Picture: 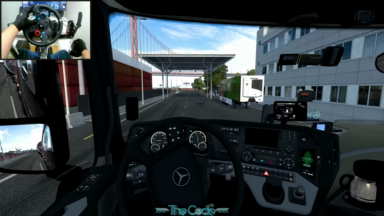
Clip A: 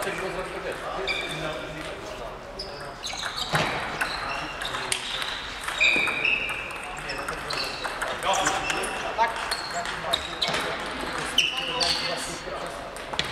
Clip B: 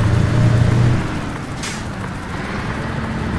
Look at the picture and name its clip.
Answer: B